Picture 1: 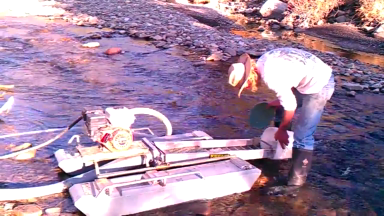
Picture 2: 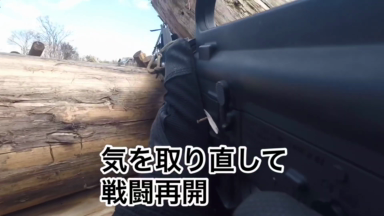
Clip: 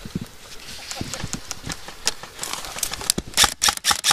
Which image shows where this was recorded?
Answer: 2